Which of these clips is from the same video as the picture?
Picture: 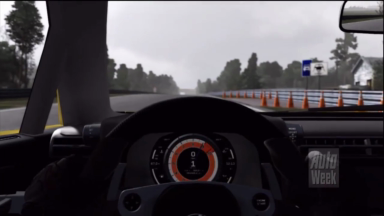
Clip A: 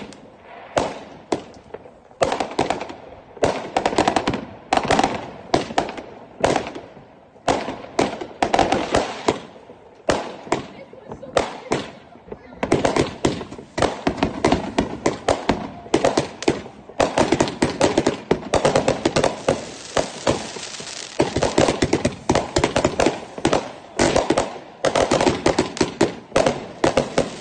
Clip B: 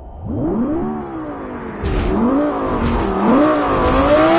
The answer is B